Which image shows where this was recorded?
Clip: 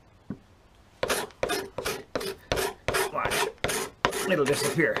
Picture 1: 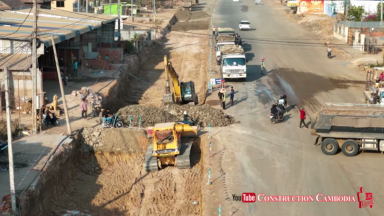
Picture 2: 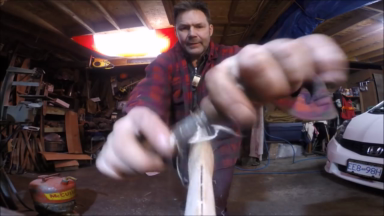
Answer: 2